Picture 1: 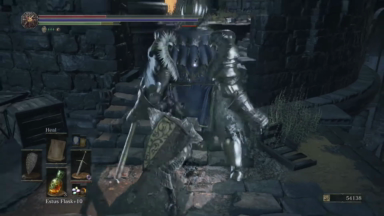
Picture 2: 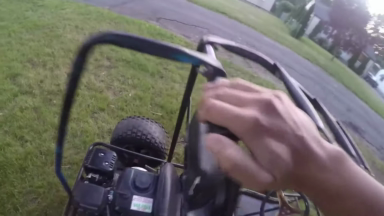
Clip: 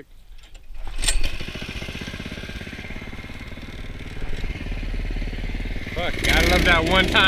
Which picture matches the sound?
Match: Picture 2